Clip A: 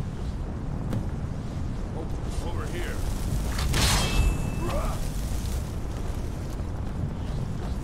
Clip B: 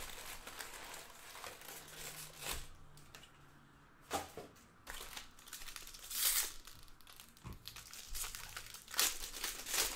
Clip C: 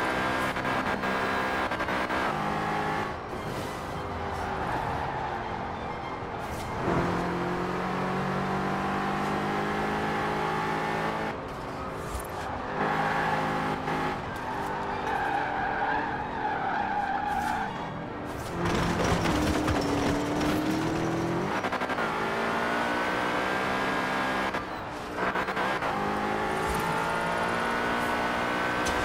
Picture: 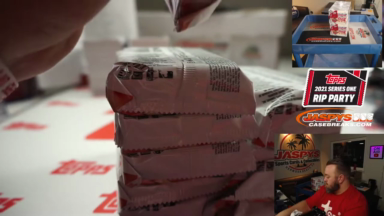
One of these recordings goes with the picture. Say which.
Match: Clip B